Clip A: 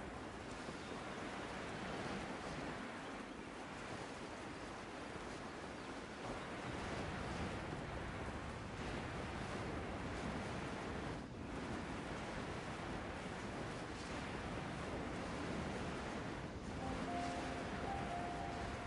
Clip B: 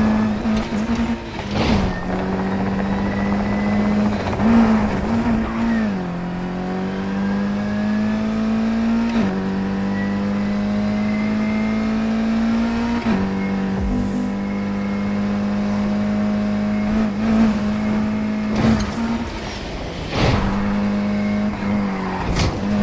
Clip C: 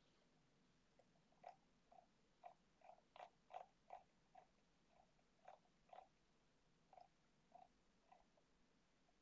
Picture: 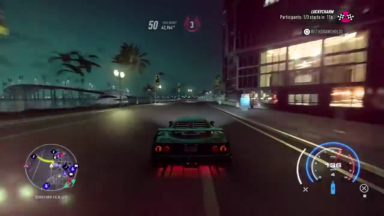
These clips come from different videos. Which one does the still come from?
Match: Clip B